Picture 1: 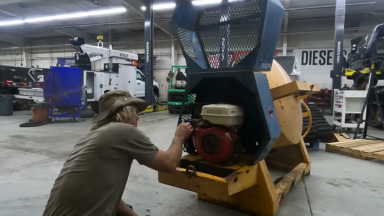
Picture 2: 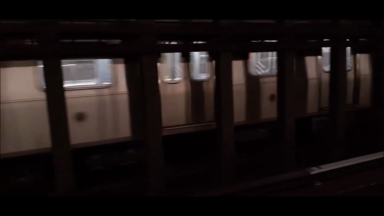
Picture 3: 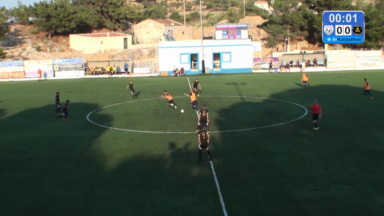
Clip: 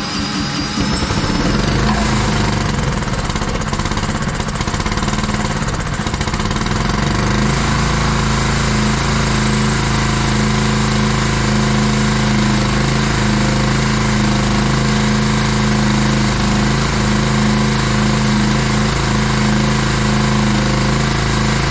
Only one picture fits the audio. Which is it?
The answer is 1